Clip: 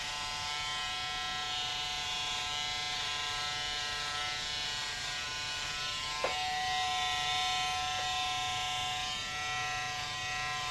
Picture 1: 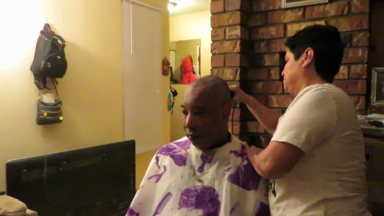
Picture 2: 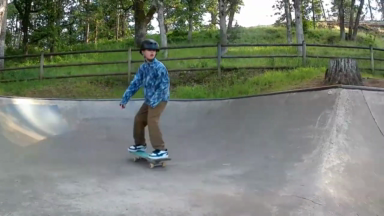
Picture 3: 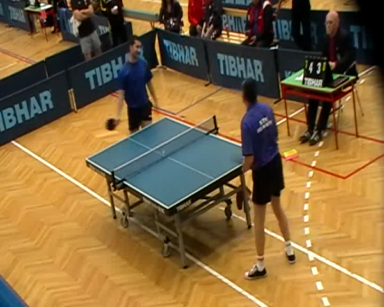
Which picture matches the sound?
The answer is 1